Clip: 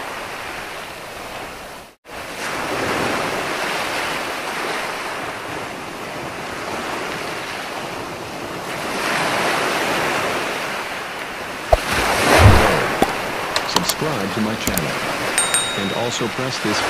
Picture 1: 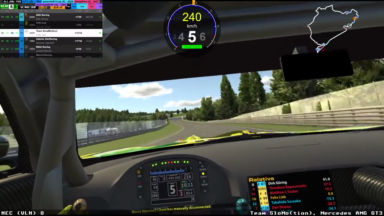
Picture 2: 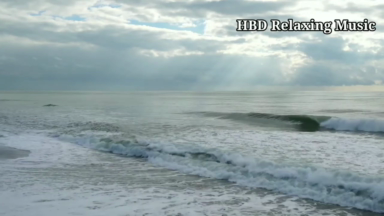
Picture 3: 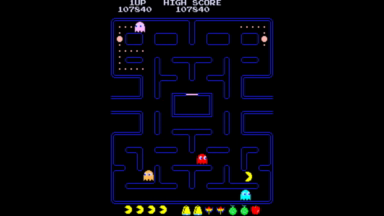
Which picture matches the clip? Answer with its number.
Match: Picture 2